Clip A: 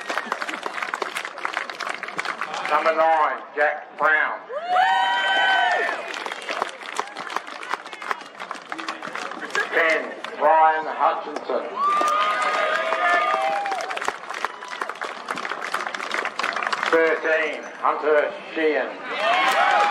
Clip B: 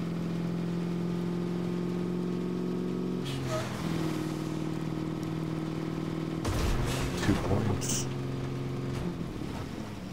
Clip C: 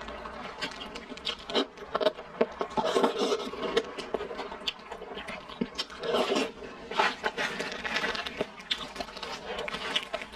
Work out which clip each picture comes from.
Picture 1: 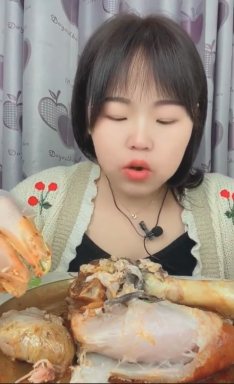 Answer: C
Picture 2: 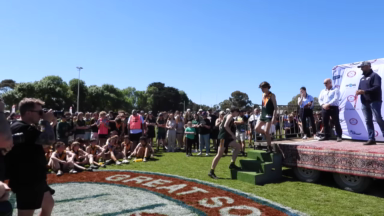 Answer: A